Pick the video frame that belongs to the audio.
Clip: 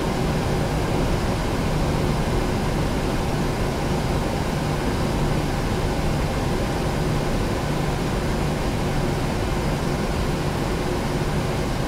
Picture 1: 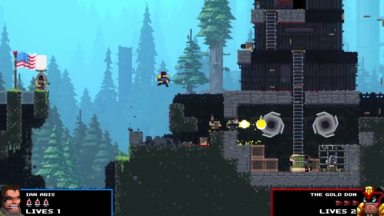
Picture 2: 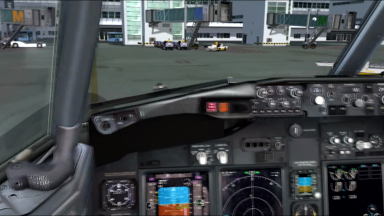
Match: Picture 2